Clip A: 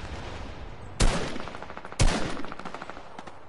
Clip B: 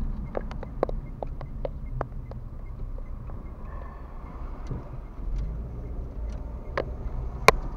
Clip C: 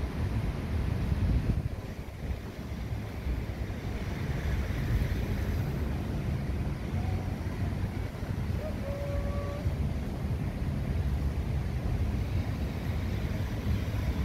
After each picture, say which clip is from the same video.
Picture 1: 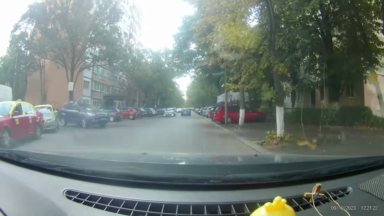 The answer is B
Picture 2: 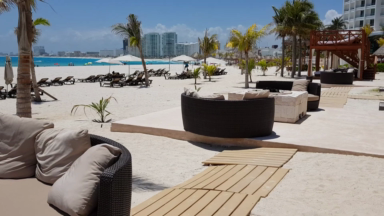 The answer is C